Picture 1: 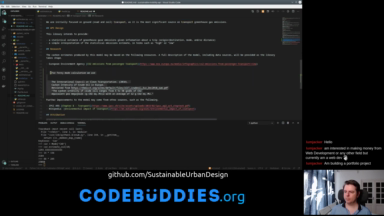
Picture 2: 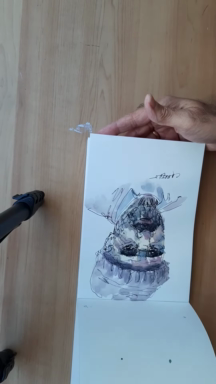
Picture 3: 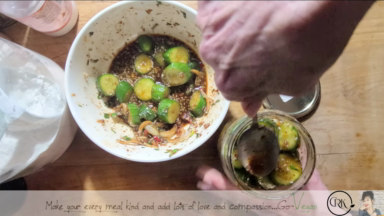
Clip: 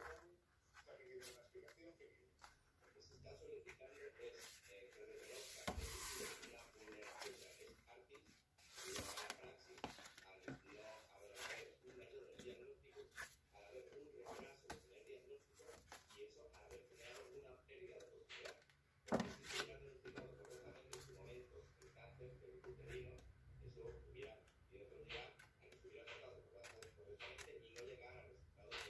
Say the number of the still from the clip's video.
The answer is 2